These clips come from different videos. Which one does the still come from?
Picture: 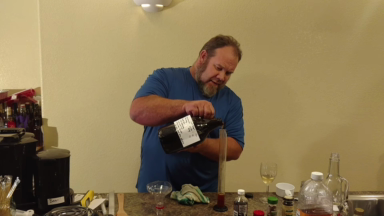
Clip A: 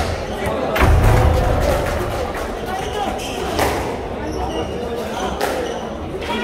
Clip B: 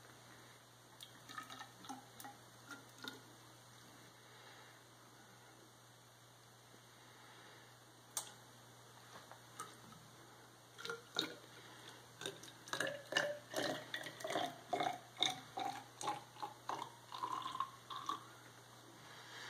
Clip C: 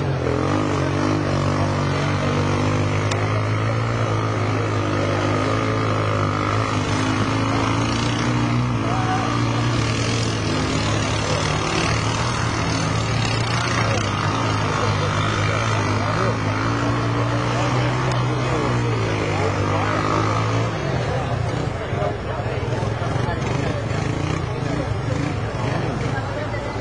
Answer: B